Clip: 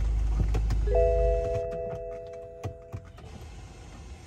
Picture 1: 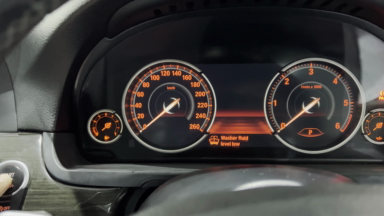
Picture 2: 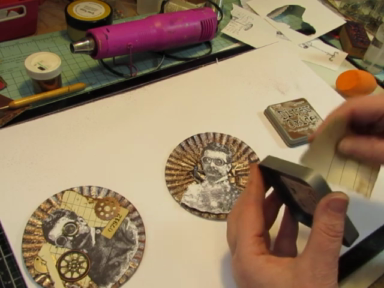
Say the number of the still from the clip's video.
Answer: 1